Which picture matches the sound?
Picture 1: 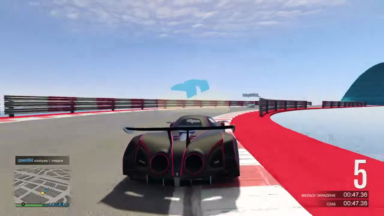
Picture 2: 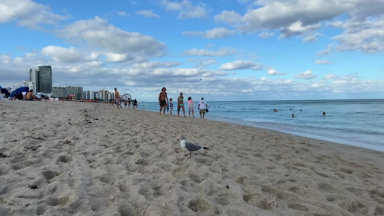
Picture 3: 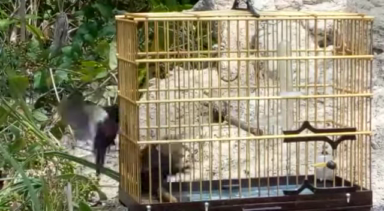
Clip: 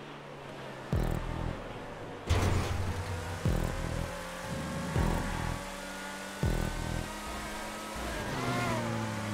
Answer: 1